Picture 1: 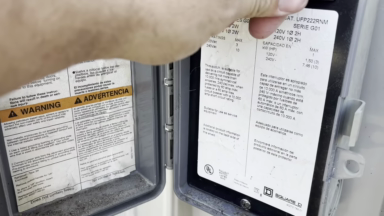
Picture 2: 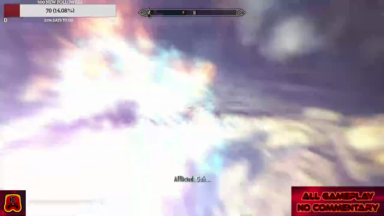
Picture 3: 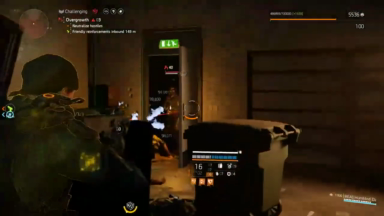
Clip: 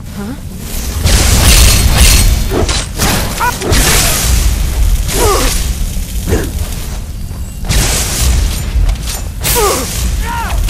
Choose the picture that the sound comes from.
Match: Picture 2